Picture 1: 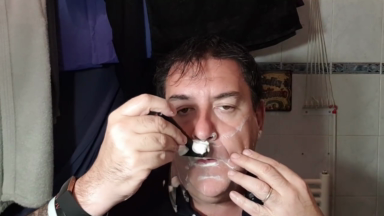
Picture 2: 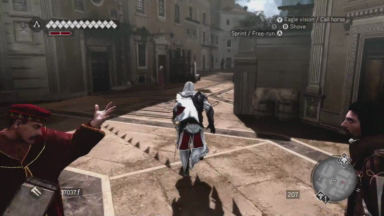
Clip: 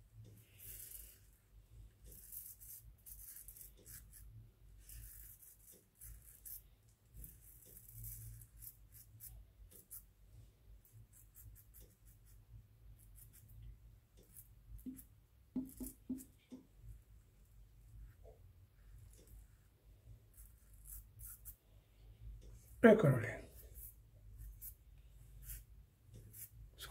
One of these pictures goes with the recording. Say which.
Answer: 1